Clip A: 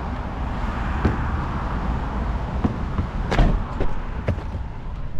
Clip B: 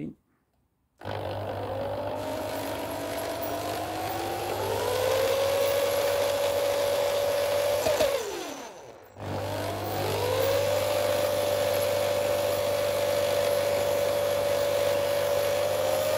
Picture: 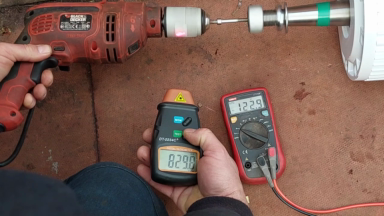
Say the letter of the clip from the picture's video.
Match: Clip B